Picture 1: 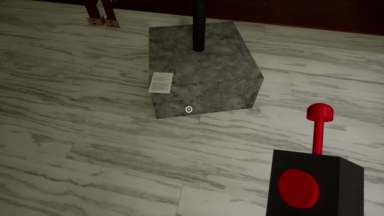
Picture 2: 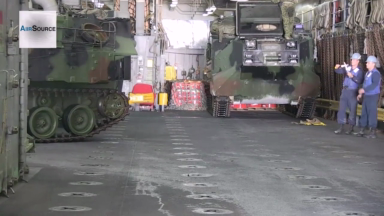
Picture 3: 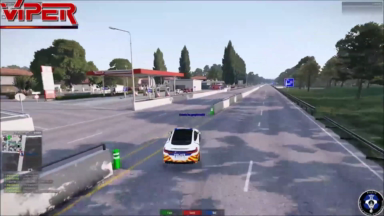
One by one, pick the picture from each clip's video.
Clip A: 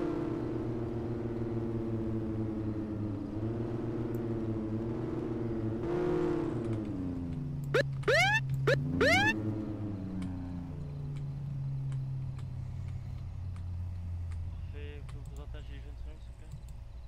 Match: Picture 3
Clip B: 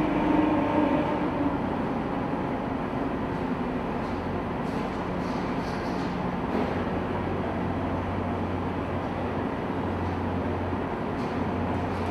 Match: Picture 2